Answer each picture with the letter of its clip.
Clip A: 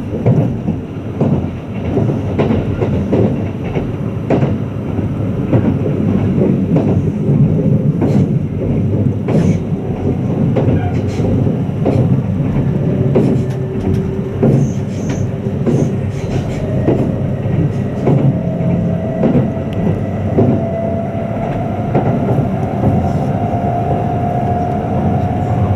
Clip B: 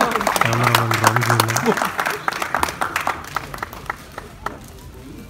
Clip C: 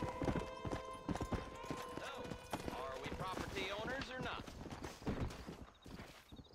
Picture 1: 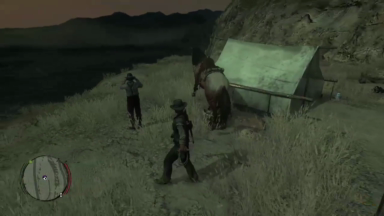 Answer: C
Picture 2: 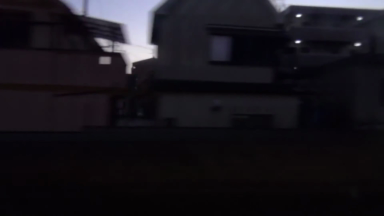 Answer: A